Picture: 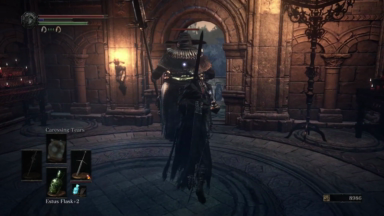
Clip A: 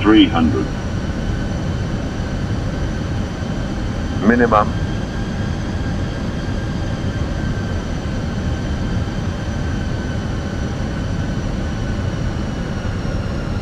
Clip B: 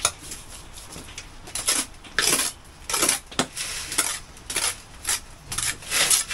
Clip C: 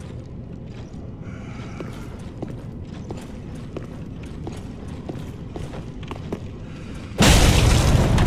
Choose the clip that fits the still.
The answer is C